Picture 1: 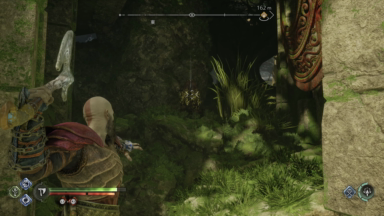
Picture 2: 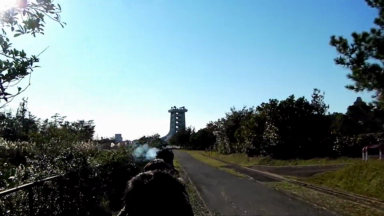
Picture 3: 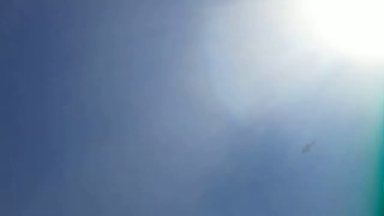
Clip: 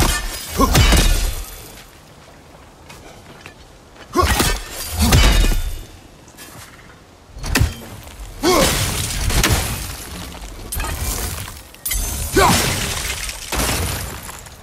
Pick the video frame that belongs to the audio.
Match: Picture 1